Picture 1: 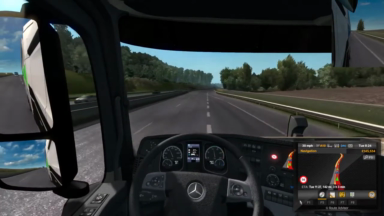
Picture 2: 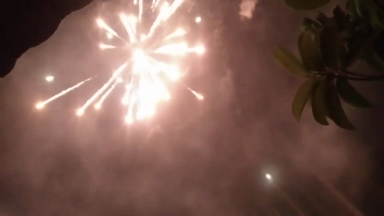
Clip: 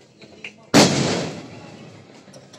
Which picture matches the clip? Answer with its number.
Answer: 2